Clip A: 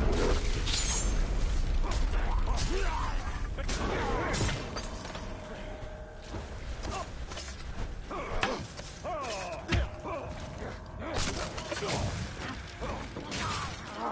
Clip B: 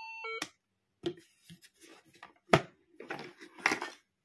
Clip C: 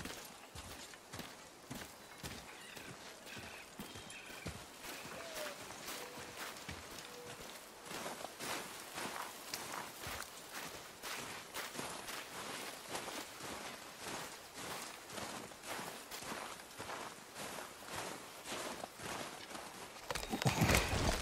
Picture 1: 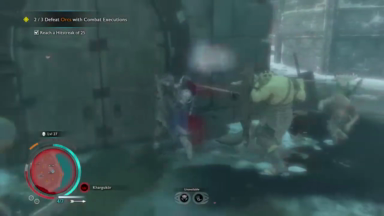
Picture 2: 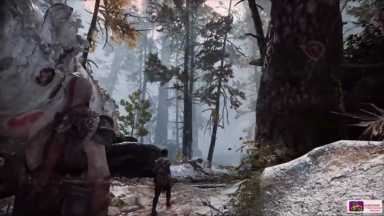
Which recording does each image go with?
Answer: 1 A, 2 C